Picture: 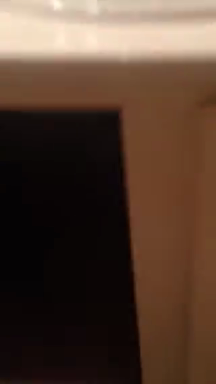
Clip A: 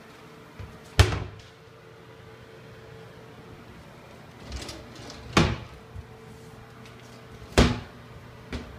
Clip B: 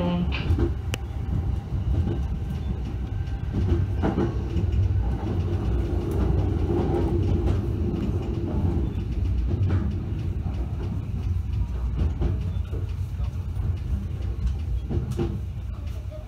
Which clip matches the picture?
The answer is A